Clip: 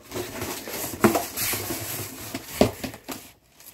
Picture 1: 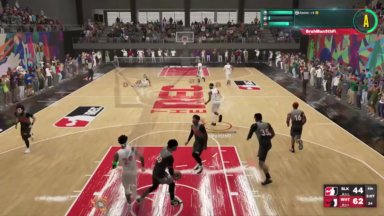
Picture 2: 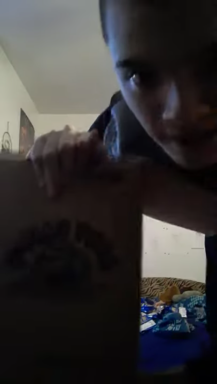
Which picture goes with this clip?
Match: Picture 2